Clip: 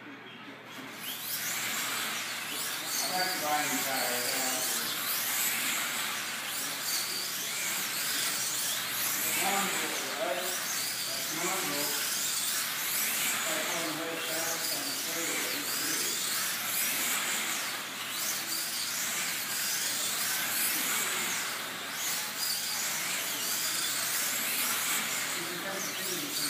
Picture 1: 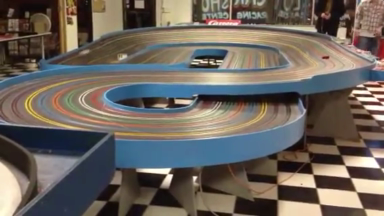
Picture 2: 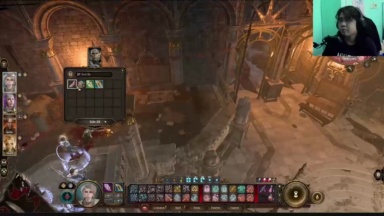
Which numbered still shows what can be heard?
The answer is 1